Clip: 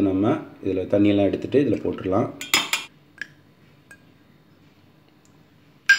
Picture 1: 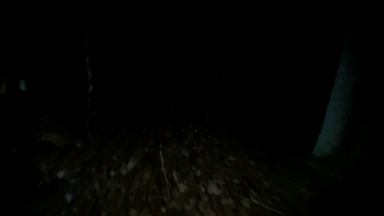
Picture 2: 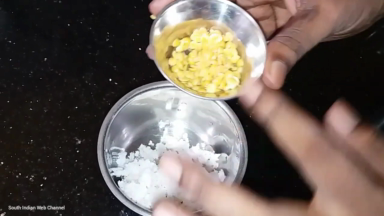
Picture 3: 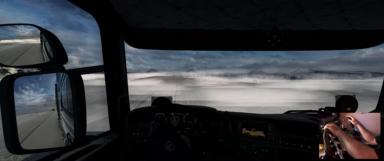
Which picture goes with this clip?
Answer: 2